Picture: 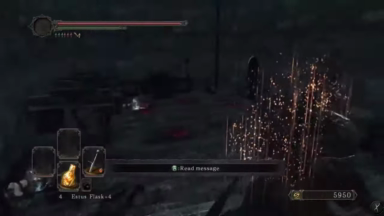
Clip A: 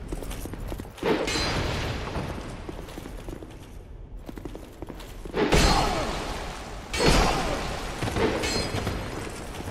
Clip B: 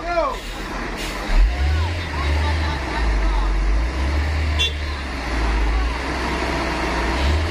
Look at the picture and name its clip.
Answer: A